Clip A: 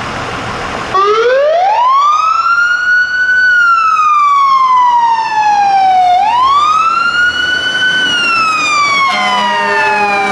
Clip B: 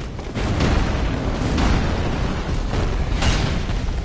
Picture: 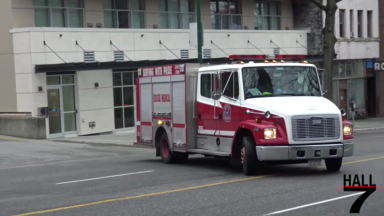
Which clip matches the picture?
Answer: A